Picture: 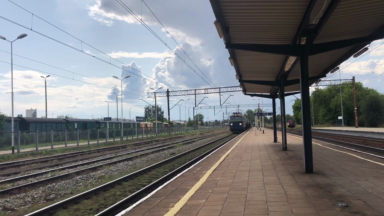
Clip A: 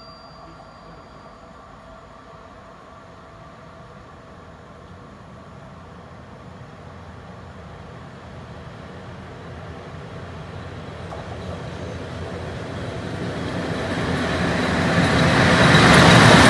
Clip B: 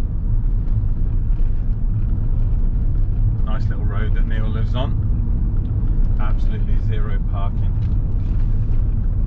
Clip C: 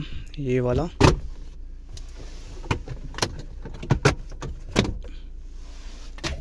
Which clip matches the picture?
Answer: A